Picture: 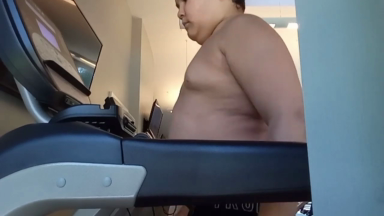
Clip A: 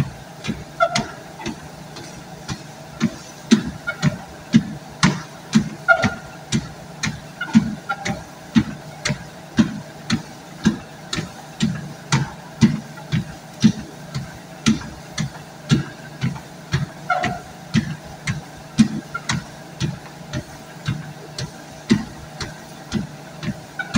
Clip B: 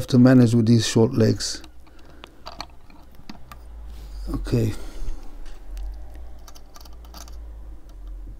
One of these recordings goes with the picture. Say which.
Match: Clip A